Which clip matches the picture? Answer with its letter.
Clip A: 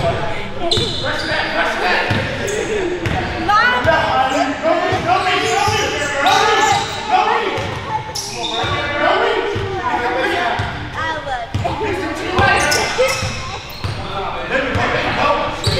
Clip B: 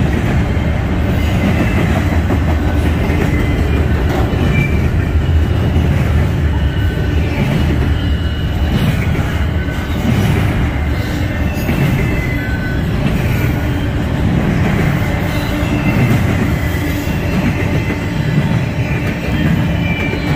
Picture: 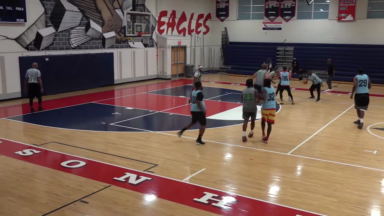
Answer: A